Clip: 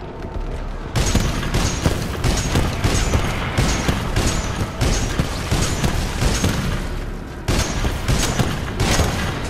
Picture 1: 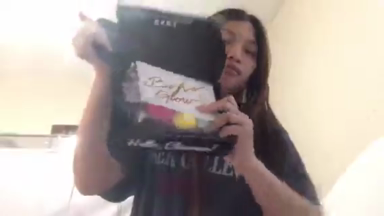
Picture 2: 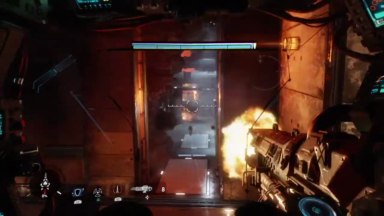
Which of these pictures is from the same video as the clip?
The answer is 2